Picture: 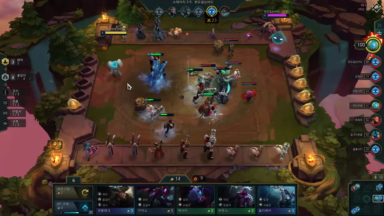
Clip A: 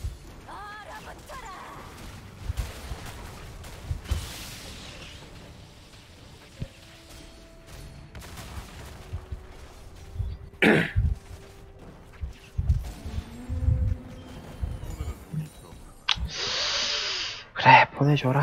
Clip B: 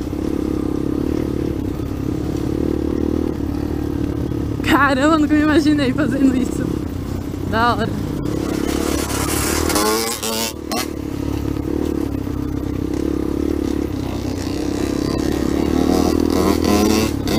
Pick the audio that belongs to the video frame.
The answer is A